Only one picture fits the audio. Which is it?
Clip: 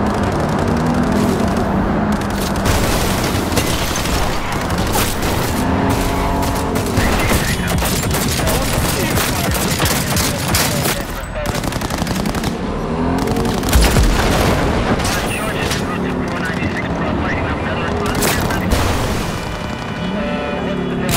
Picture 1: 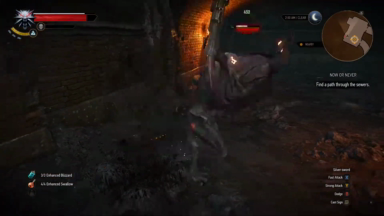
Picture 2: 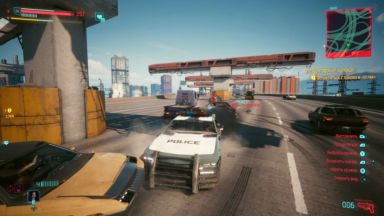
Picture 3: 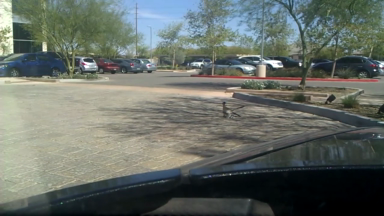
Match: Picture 2